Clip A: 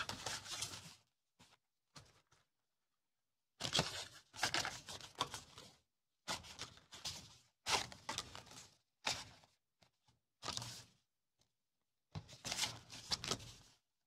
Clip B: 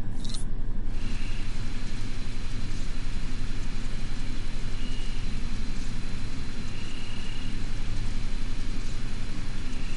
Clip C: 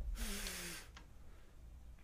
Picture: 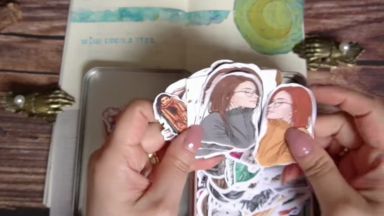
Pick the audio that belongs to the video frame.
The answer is A